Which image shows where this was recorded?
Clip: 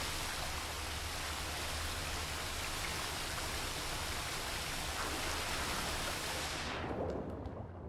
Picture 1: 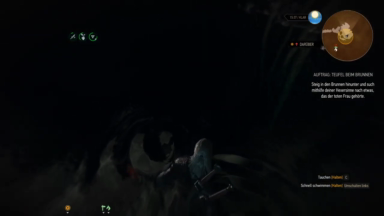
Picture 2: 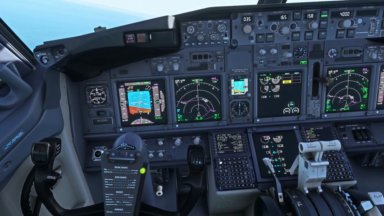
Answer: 1